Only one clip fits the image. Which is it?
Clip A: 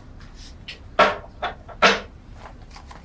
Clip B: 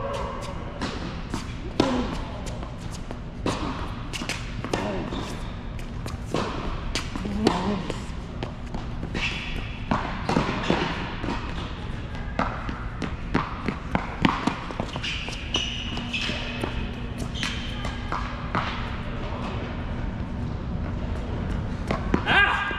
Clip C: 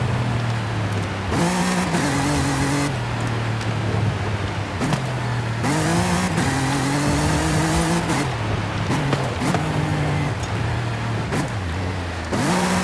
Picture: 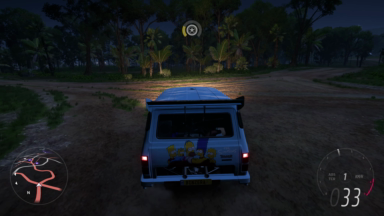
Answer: C